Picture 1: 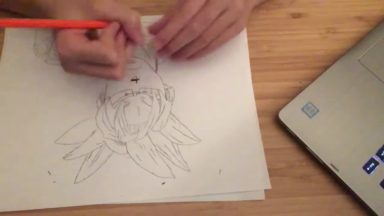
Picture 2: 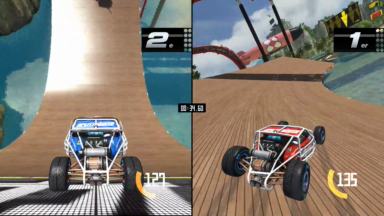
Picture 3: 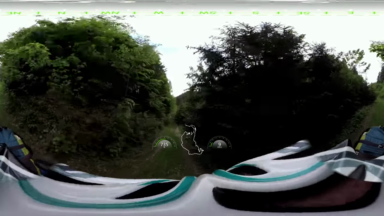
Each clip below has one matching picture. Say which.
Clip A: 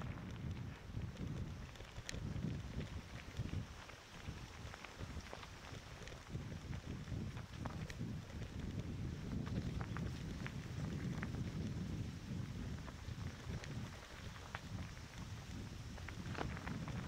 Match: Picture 3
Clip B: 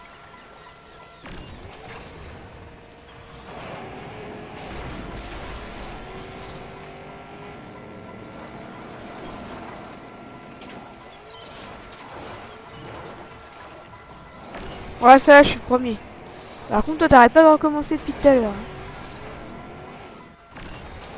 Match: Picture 2